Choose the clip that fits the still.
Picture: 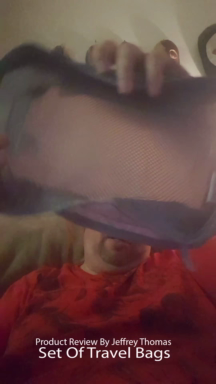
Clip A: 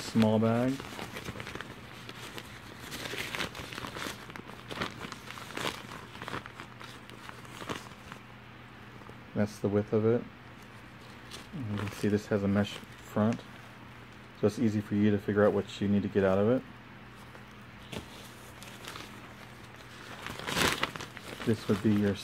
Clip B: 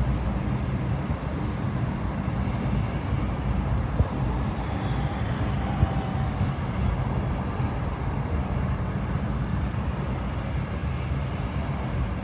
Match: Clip A